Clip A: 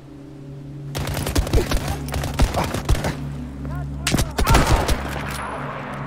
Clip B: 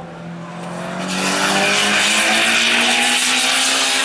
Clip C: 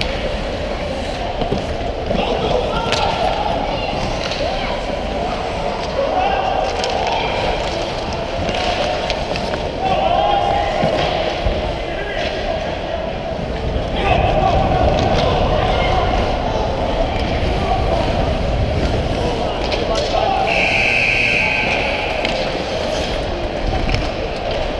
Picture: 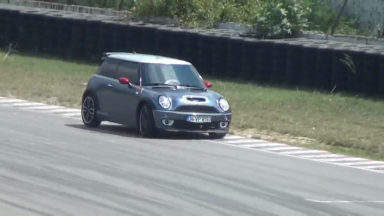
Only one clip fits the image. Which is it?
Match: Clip B